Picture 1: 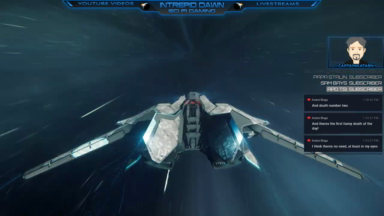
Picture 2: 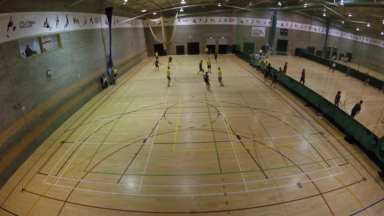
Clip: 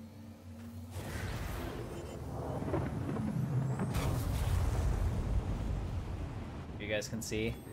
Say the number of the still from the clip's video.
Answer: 1